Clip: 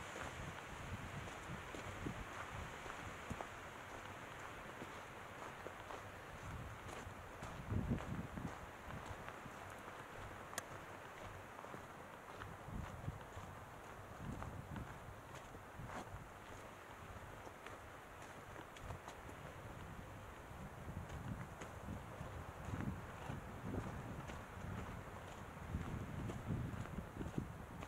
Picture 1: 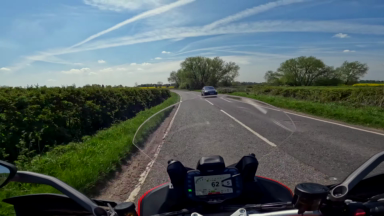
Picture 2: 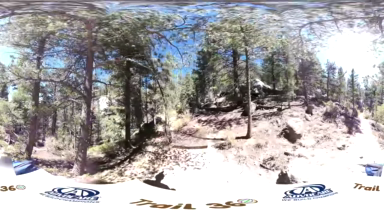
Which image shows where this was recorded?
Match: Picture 2